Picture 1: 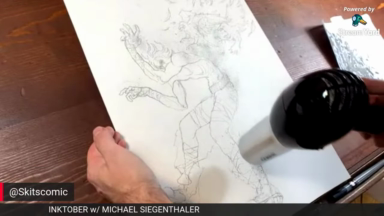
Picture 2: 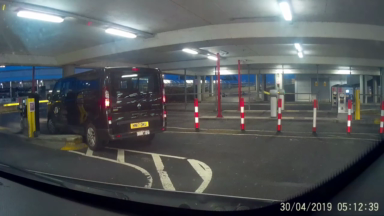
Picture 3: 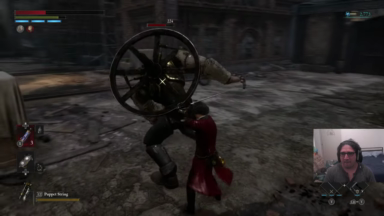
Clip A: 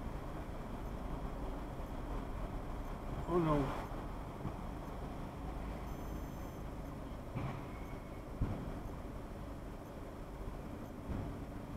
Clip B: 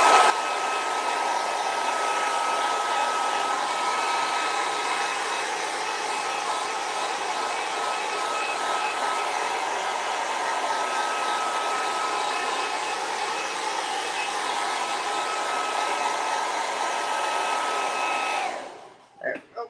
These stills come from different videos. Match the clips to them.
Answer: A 2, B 1